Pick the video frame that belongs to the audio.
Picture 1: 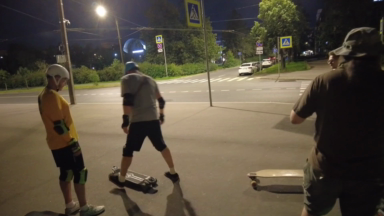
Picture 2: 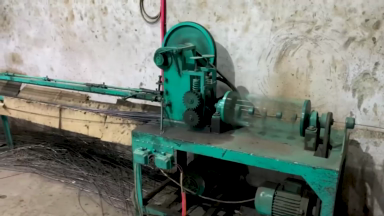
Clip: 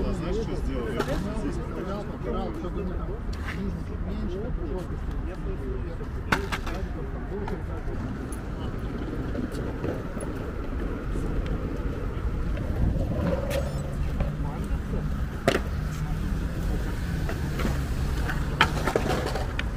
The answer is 1